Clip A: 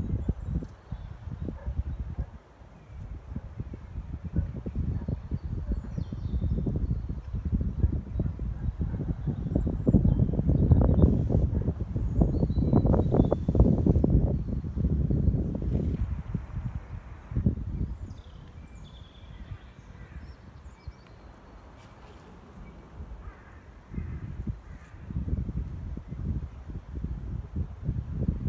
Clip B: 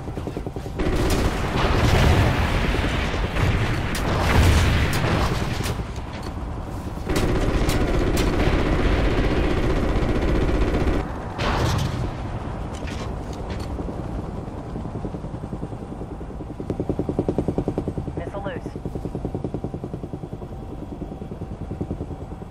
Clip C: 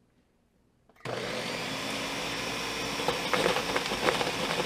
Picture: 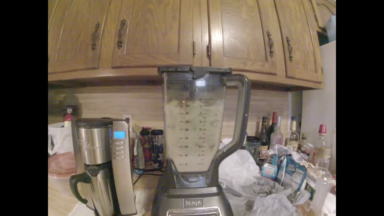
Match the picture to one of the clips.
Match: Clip C